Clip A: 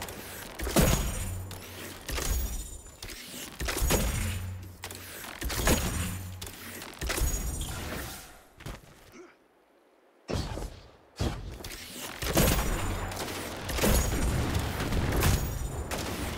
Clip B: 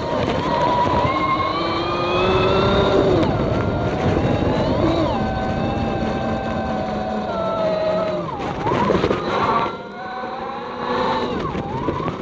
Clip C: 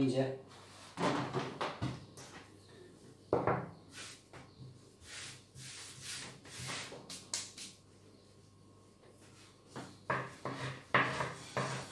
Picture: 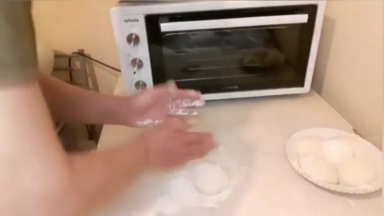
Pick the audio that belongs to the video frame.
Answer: C